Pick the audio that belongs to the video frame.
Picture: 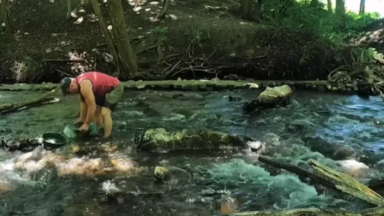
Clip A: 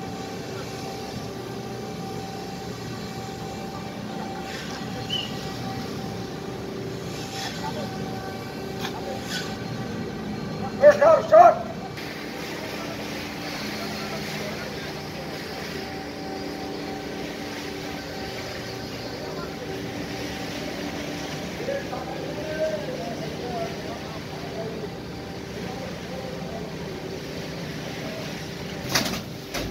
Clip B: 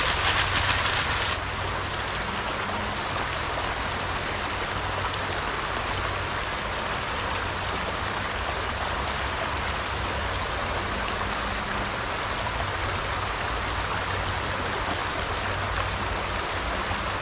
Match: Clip B